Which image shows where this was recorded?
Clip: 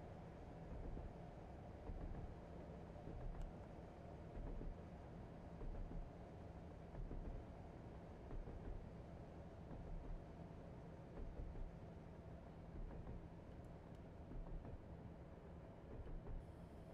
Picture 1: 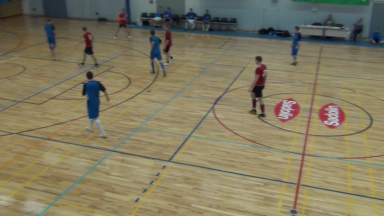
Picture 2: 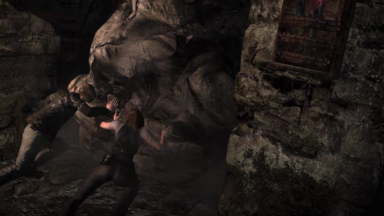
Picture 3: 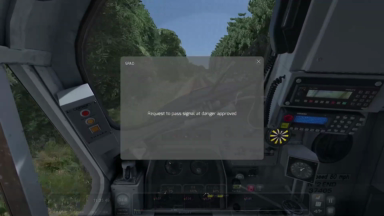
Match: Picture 3